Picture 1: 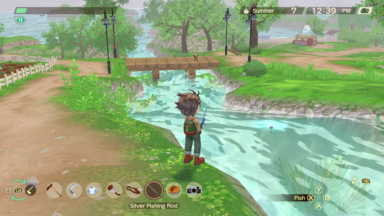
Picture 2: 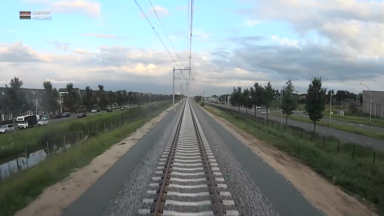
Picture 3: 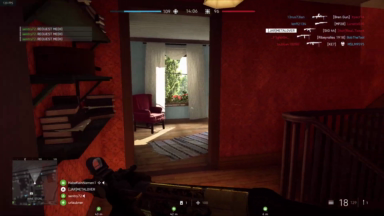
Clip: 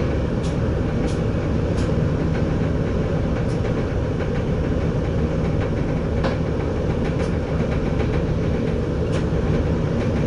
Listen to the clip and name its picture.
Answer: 2